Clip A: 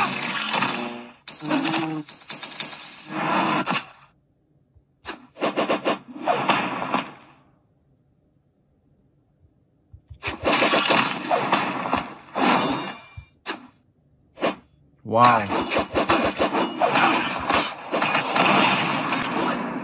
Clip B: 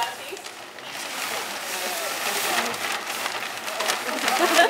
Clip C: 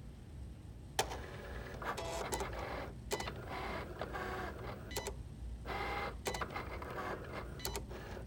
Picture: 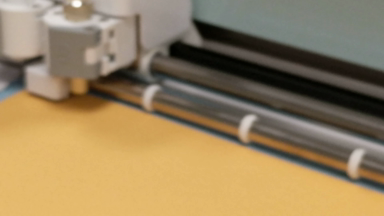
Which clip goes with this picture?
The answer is C